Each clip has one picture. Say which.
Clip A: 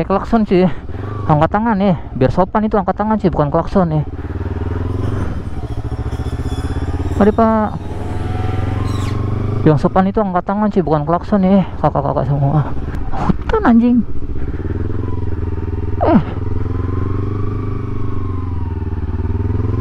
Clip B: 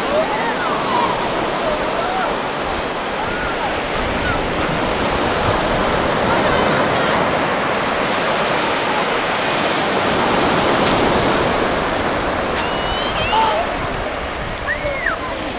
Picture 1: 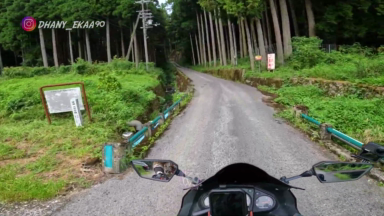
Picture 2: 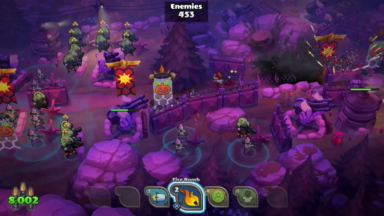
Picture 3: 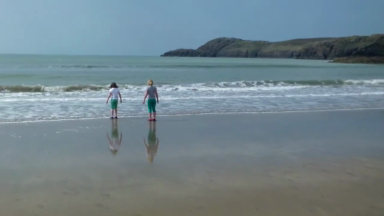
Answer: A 1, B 3